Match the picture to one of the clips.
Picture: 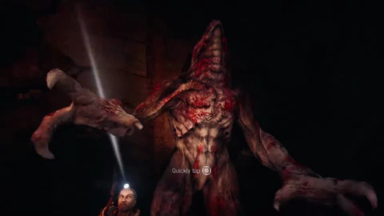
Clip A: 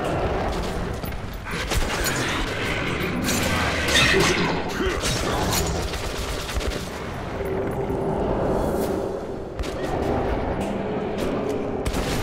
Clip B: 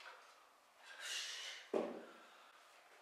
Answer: A